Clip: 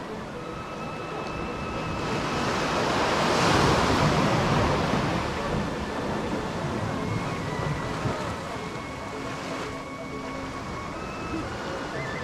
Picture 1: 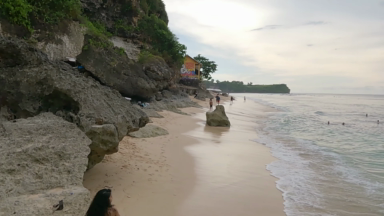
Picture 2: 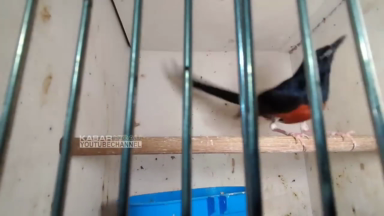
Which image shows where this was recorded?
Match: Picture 1